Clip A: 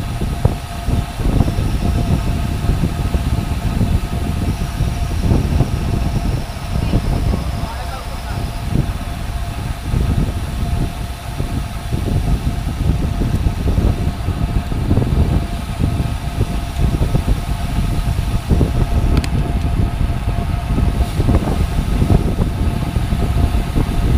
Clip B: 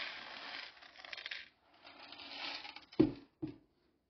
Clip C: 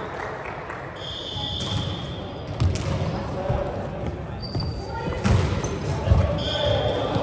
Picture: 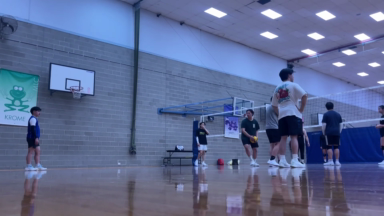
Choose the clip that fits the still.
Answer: C